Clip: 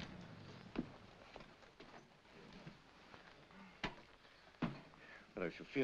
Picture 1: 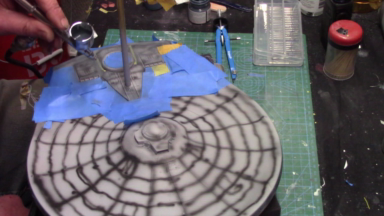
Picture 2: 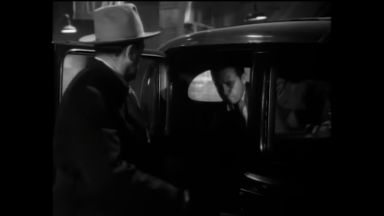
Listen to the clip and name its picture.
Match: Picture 2